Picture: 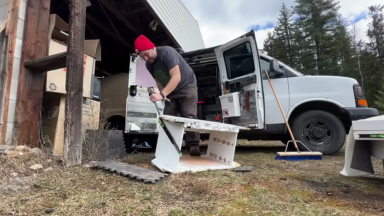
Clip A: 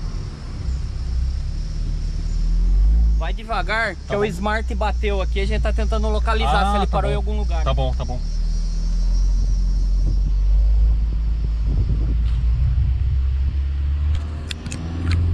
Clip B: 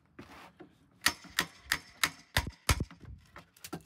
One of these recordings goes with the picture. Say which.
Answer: B